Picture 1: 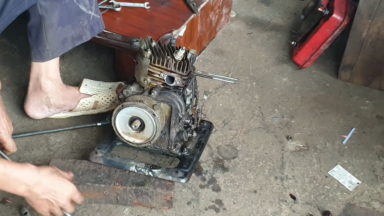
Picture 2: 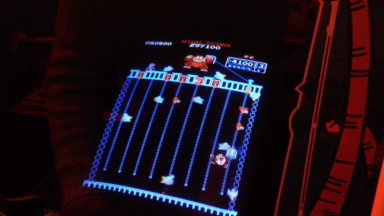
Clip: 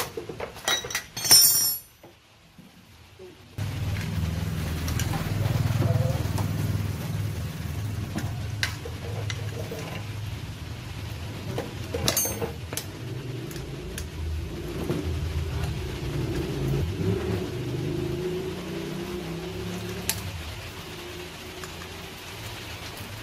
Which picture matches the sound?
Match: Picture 1